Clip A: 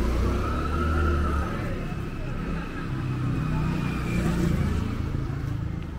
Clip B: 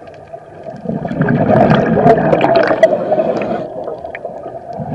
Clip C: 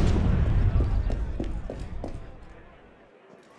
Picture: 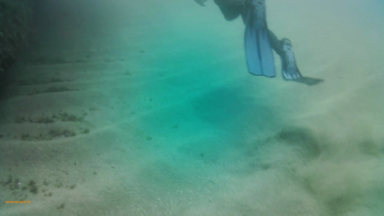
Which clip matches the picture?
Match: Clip B